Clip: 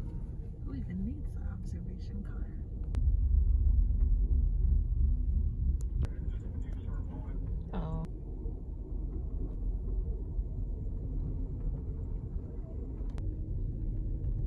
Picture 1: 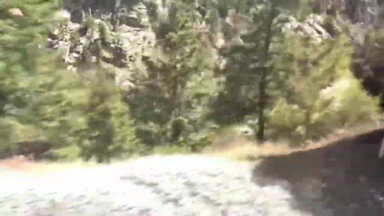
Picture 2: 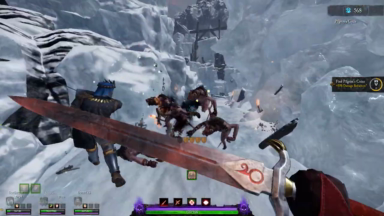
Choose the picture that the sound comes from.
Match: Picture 1